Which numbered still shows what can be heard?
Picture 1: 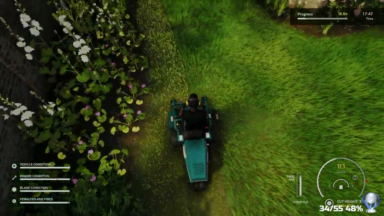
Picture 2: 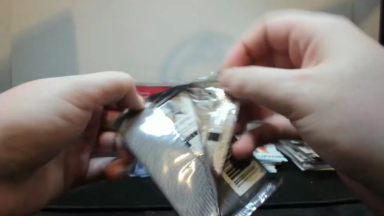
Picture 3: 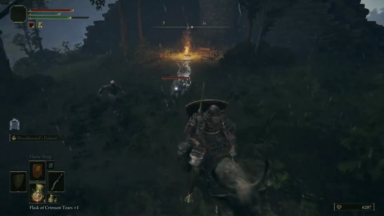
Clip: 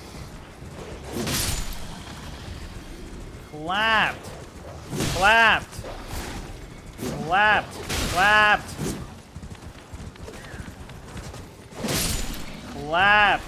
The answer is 3